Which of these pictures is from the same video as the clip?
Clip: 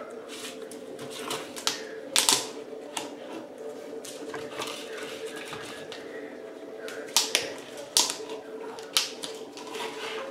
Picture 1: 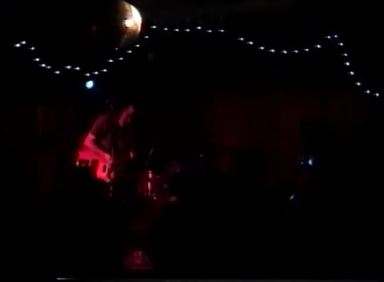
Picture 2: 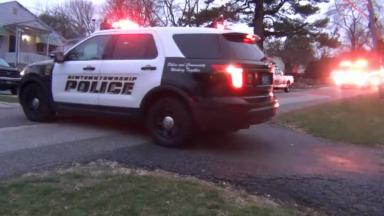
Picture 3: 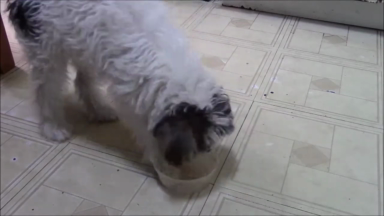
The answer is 3